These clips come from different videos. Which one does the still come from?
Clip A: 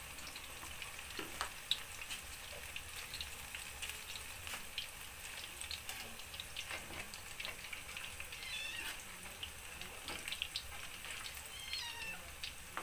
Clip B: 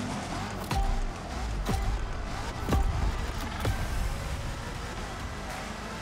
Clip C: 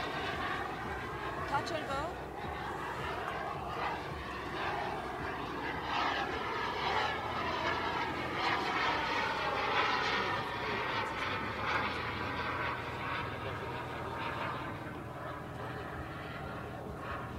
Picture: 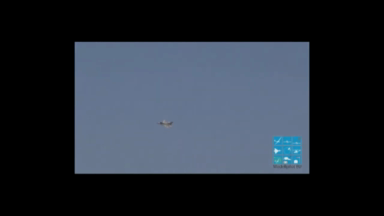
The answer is C